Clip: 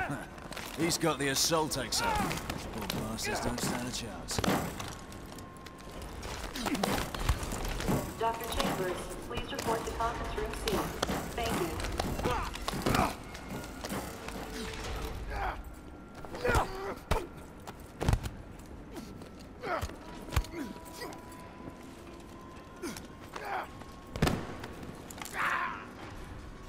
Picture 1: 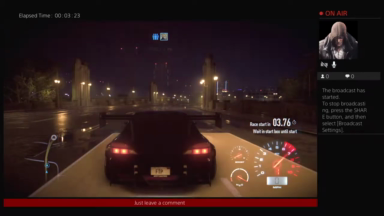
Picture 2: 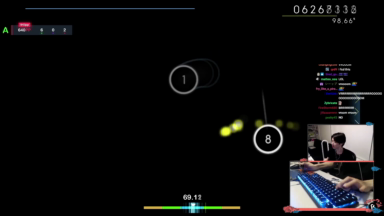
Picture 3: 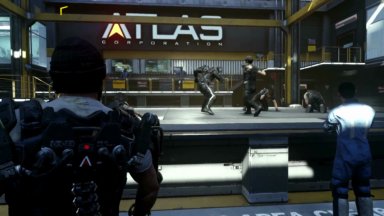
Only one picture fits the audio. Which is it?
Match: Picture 3